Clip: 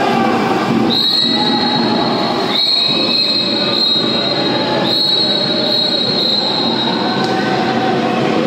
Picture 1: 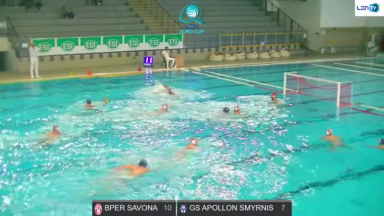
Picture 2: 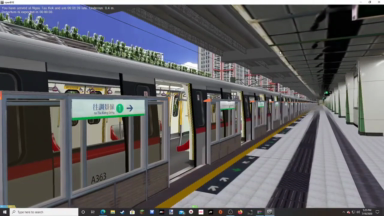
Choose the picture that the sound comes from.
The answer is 1